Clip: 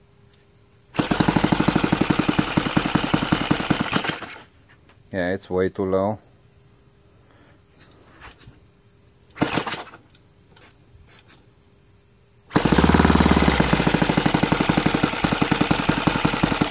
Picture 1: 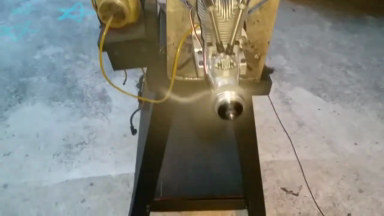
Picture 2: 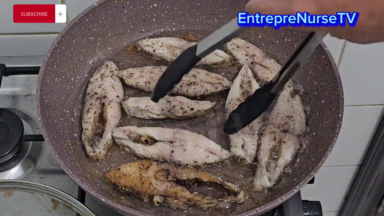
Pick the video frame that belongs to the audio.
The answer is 1